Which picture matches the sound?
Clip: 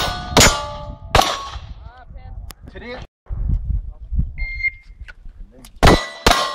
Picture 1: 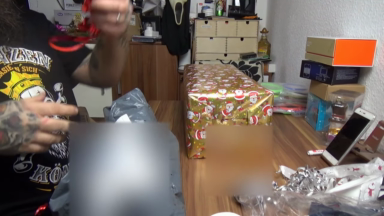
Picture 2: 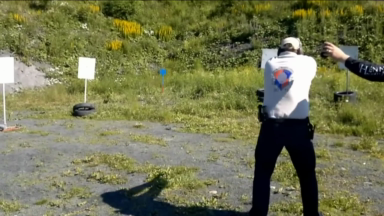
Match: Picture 2